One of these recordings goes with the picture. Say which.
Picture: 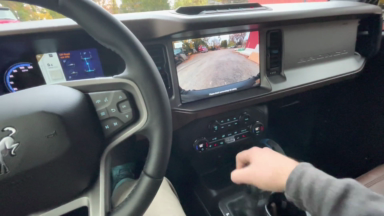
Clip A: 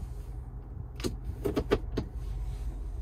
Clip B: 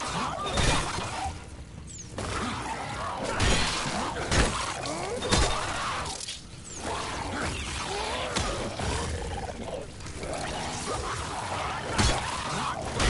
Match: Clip A